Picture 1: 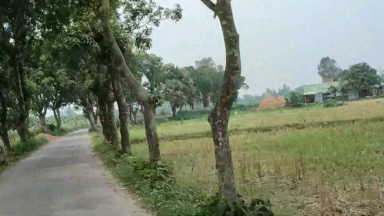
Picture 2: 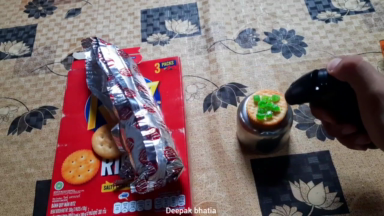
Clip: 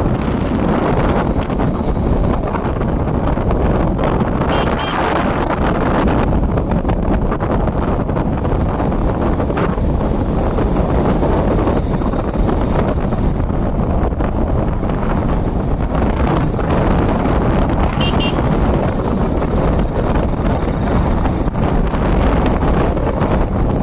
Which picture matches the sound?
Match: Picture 1